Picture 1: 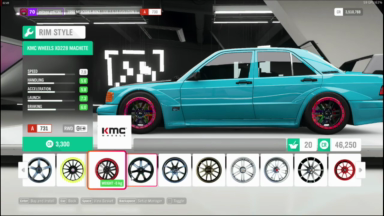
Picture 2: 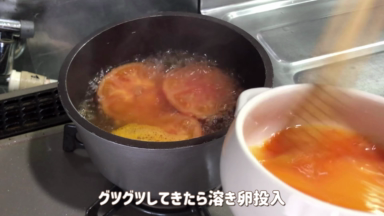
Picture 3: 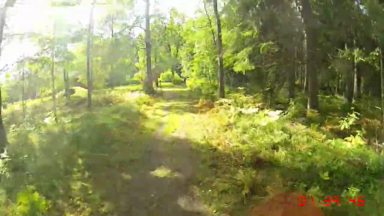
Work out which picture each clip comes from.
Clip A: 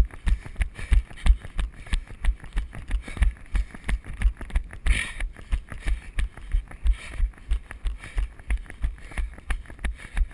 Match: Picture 3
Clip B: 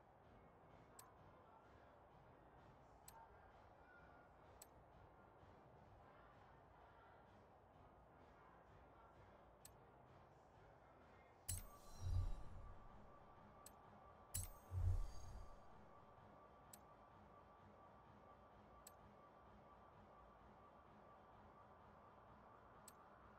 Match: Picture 1